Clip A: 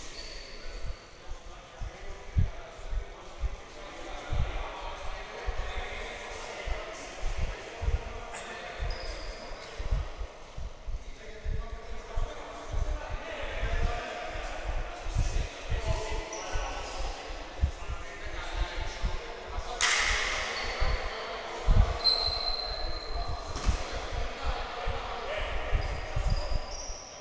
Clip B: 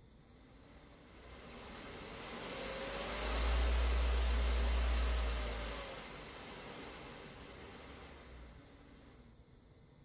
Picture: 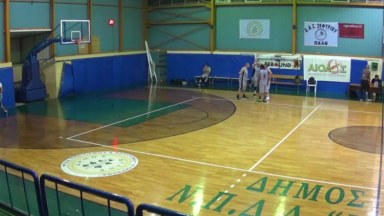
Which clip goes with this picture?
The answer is A